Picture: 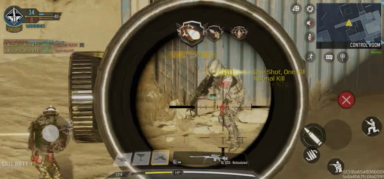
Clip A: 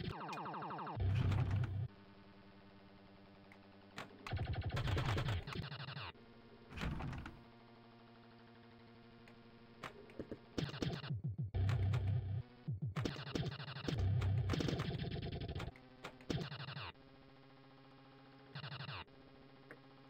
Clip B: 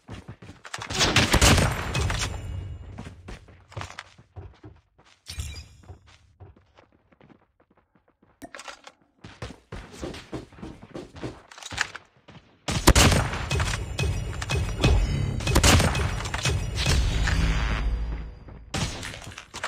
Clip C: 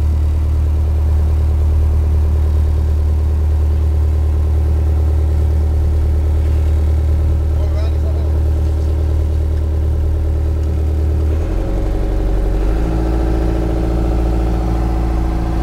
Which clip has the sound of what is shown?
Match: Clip B